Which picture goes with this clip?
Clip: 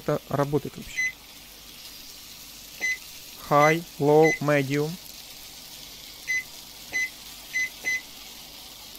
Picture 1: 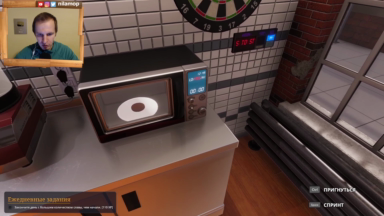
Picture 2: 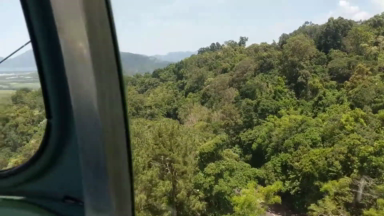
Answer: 1